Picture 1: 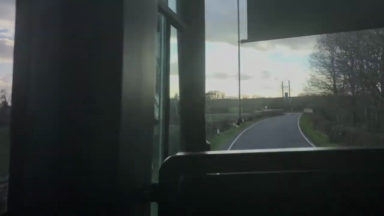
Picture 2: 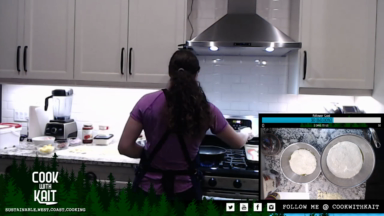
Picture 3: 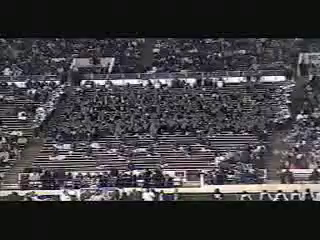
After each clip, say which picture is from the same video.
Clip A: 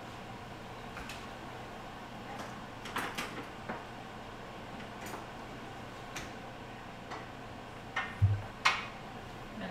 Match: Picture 2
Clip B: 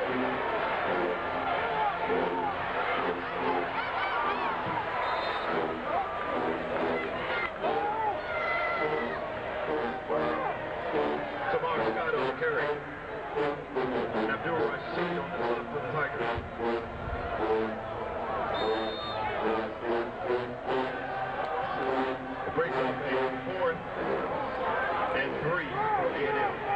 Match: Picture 3